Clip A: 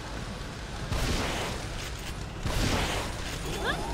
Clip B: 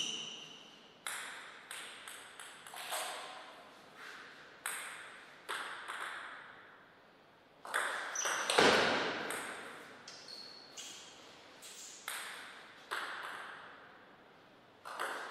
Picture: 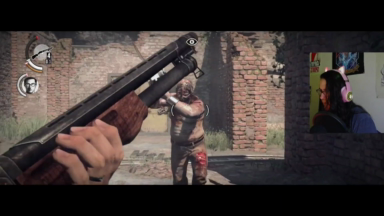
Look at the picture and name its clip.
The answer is A